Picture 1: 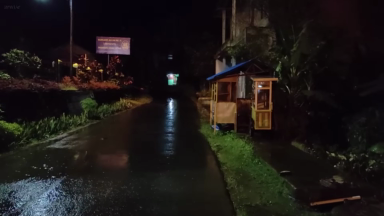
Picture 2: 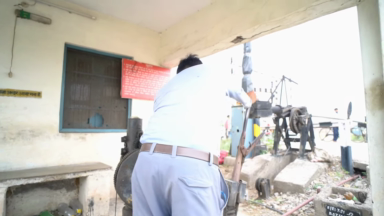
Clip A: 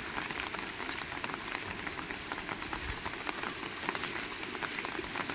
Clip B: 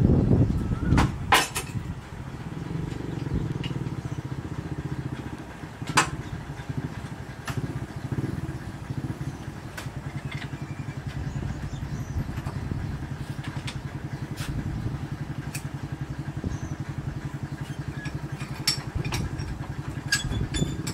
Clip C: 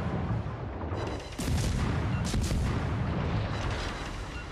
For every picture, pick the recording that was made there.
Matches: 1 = A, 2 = B